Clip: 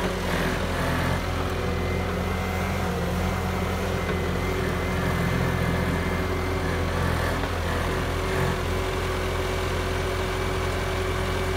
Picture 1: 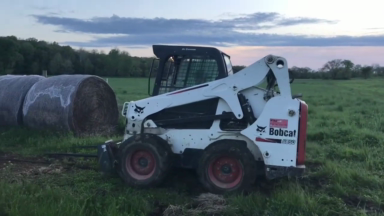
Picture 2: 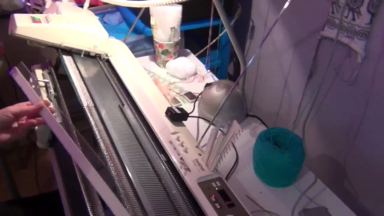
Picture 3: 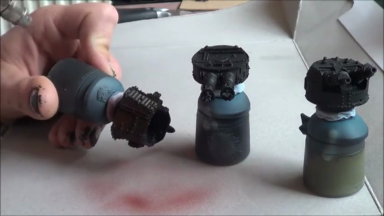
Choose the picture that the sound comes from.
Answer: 1